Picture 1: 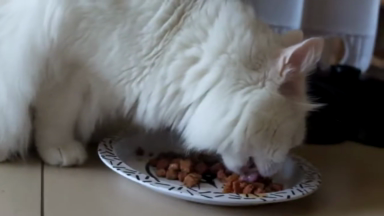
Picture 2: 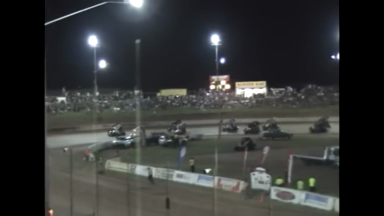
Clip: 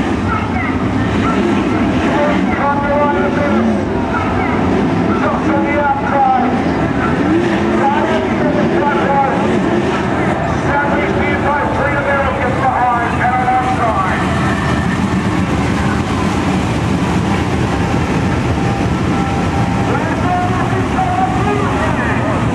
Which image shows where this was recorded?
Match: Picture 2